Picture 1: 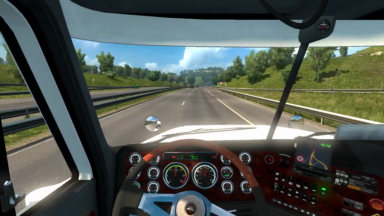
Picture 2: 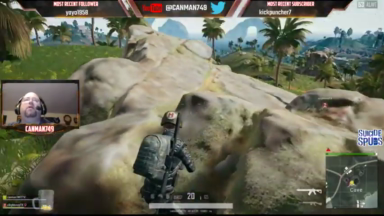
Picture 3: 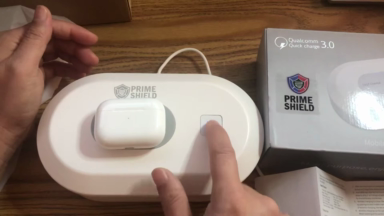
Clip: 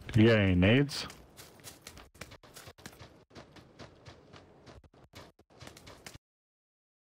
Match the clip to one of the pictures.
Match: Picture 2